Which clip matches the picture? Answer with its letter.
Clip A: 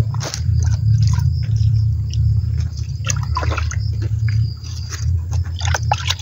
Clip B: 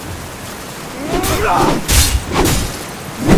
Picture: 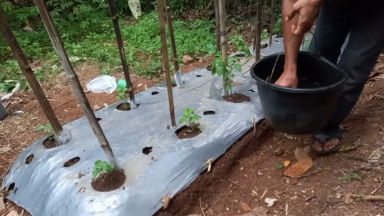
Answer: A